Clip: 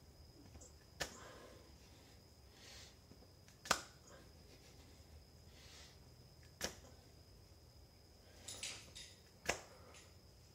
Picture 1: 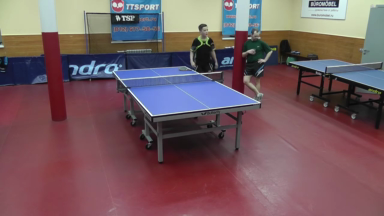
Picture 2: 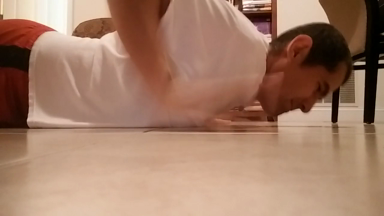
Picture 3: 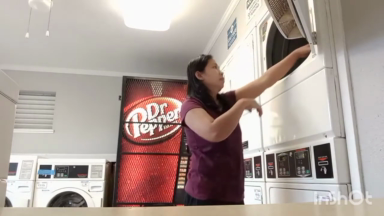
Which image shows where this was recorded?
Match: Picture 2